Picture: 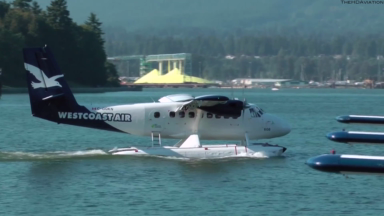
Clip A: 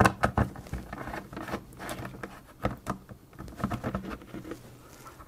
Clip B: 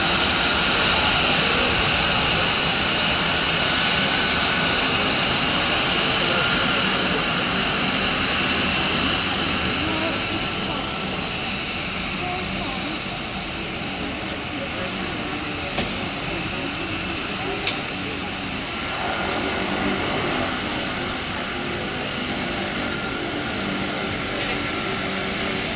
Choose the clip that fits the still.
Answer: B